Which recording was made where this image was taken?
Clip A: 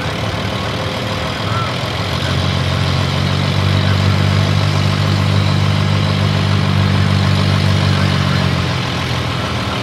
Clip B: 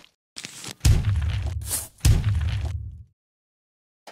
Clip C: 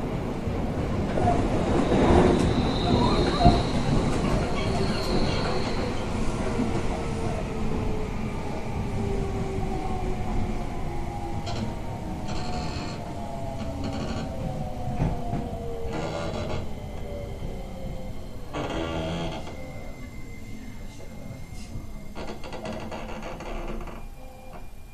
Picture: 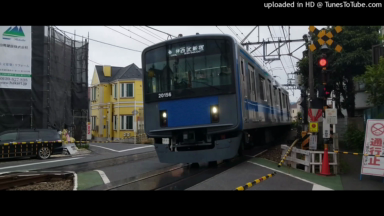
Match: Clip C